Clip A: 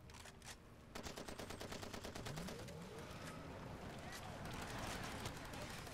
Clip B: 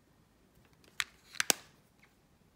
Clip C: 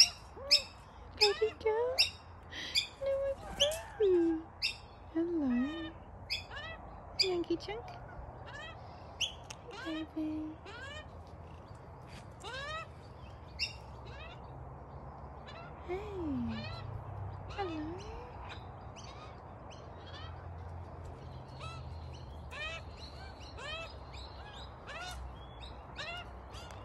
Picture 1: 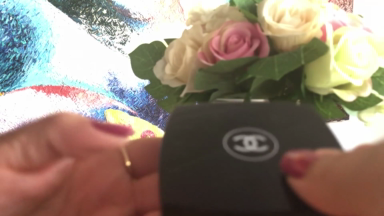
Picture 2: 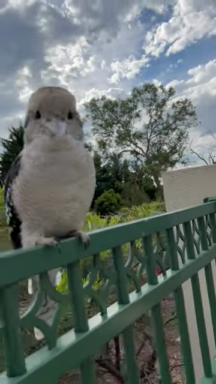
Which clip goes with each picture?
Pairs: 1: B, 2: C